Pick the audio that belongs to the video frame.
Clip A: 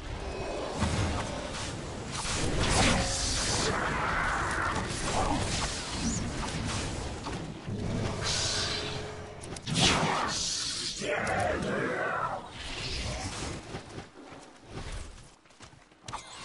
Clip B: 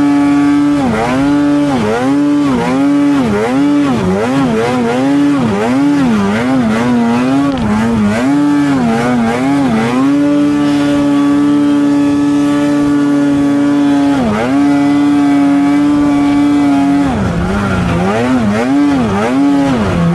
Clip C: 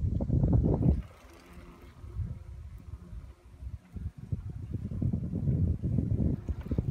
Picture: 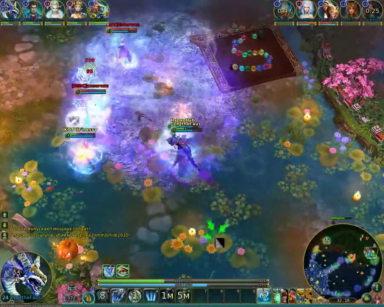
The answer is A